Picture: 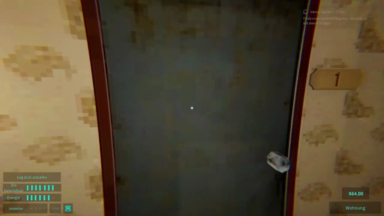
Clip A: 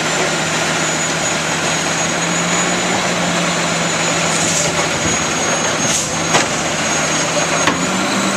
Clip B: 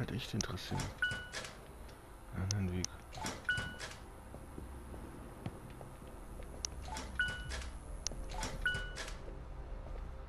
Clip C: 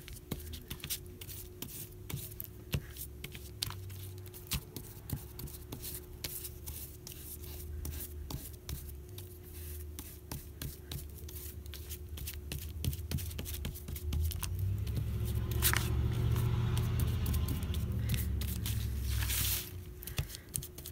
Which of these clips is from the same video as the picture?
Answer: B